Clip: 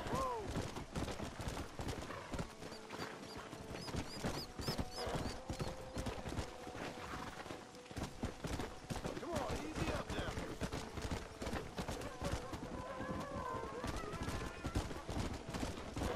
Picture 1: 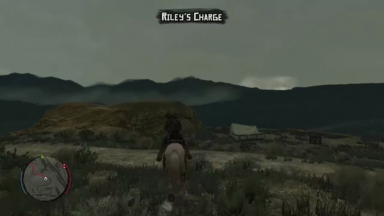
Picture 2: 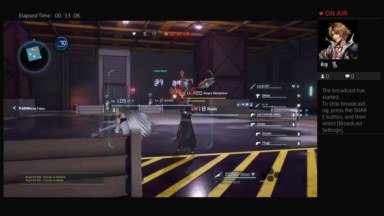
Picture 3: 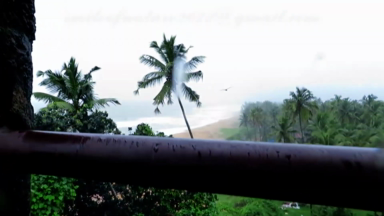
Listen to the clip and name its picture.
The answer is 1